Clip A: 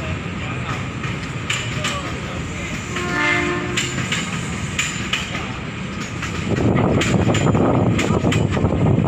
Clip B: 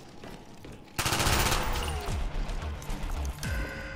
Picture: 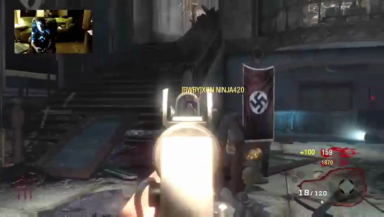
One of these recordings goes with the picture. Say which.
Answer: B